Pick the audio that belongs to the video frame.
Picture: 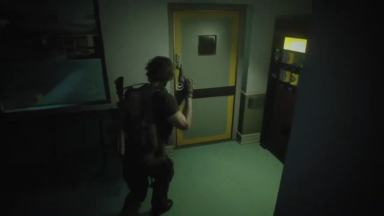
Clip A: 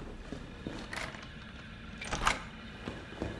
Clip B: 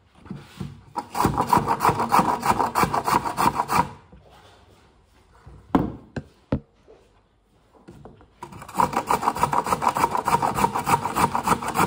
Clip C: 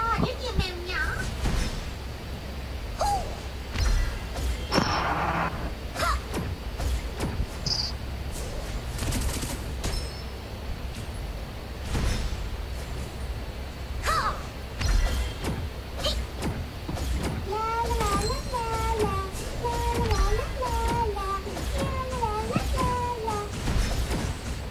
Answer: A